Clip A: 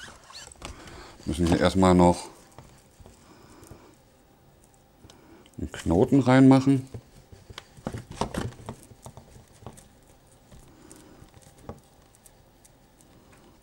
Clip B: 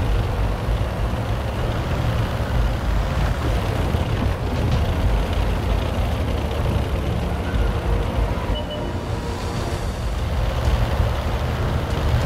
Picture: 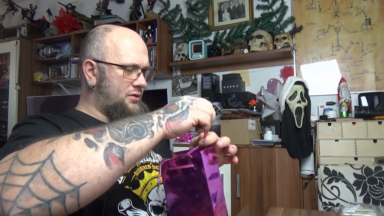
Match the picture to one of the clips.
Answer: A